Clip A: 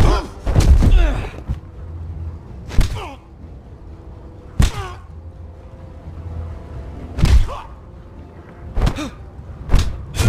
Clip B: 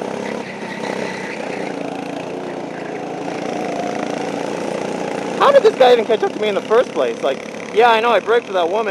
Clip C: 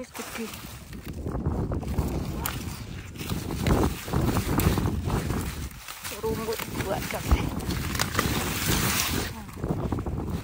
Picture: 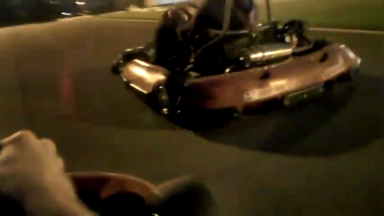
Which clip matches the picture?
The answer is B